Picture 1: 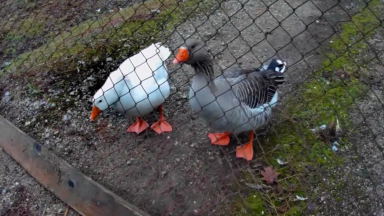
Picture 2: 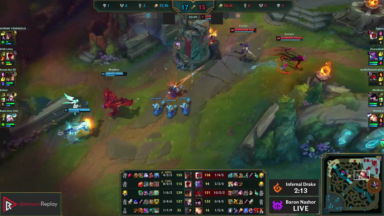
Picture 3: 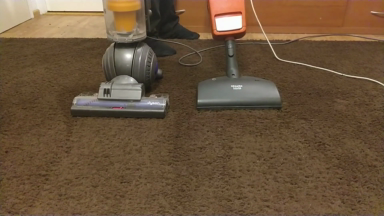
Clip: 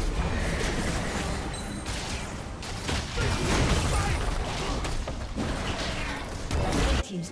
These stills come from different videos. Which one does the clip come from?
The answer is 2